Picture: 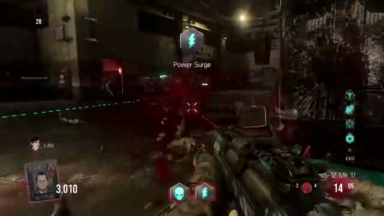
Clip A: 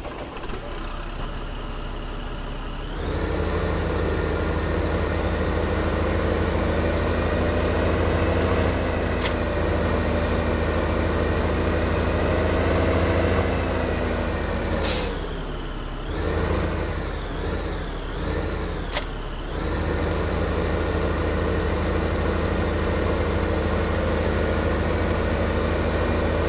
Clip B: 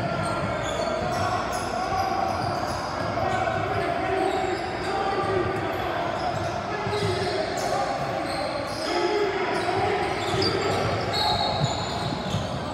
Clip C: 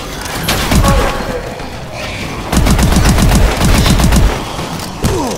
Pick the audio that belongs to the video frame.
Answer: C